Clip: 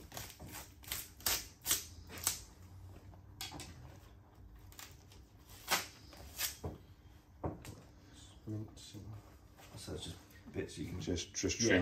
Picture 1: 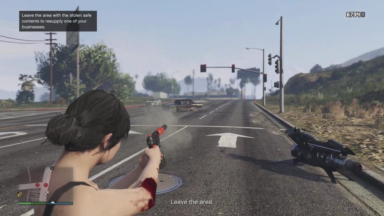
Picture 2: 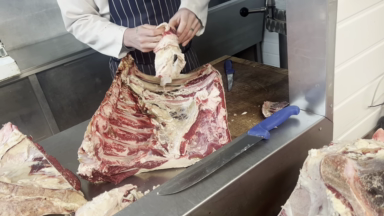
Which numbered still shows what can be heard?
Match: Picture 2